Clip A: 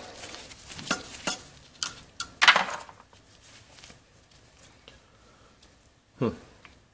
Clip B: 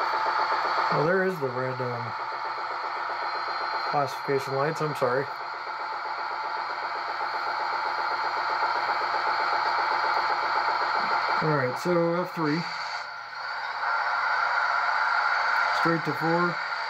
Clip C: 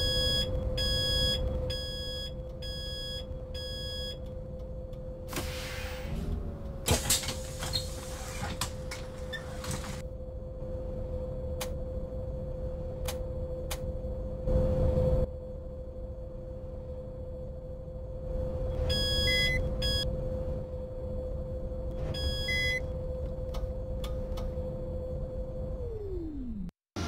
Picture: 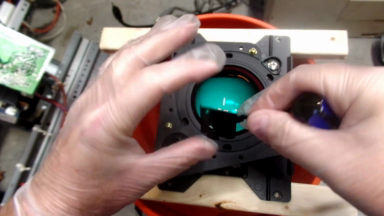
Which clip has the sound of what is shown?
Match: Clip A